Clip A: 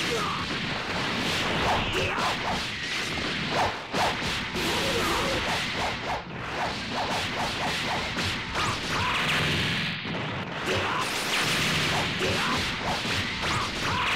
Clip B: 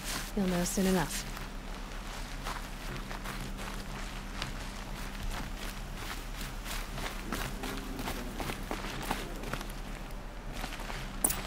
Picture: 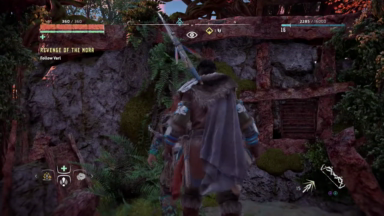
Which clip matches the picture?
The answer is B